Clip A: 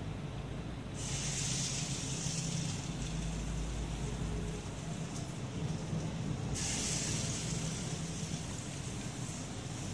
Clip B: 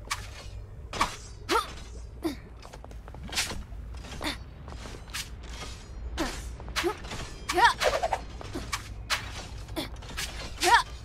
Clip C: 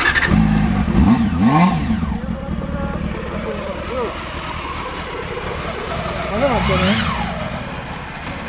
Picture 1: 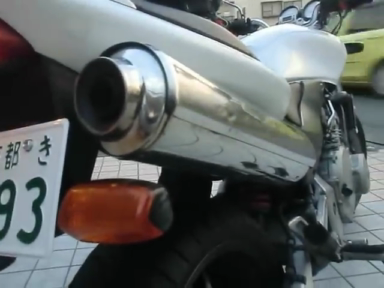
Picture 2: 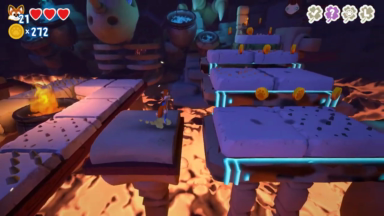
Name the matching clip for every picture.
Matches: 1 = C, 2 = B